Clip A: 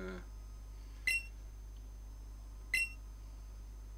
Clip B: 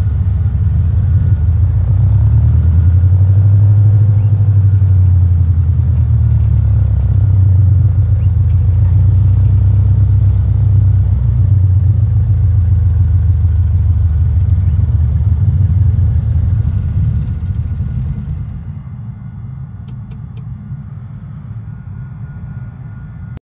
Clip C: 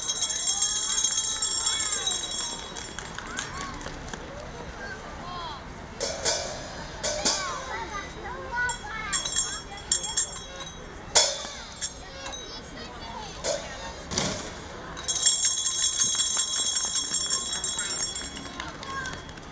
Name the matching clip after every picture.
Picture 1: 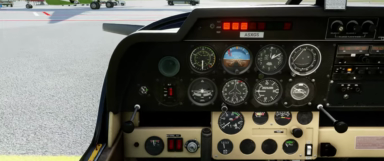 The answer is B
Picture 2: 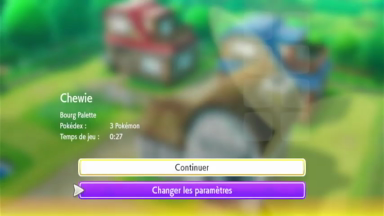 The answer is A